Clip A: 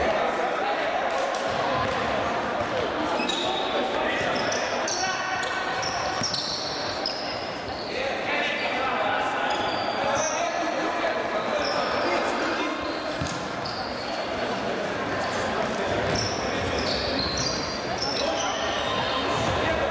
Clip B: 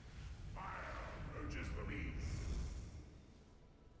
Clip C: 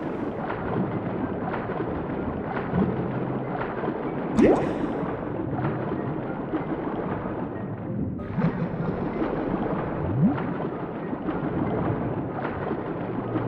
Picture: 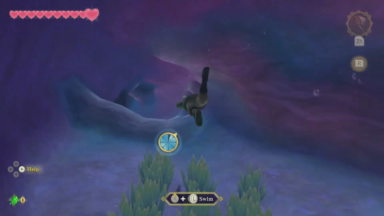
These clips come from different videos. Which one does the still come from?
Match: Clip C